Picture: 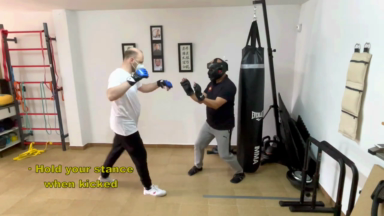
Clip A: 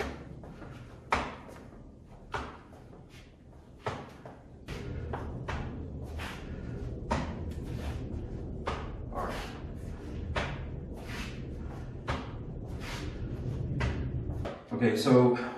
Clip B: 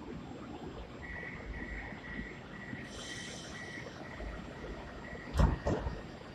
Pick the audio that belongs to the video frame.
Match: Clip A